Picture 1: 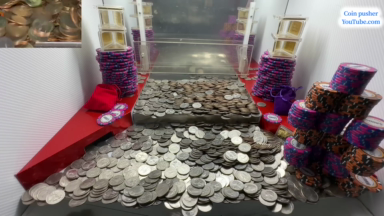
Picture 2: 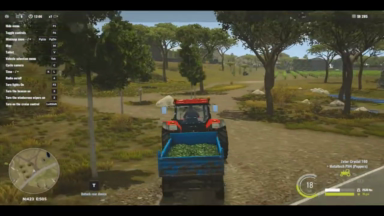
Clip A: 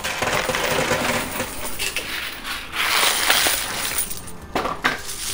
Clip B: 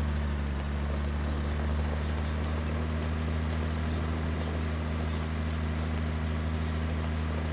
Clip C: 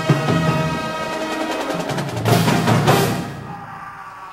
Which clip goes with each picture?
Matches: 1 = A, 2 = B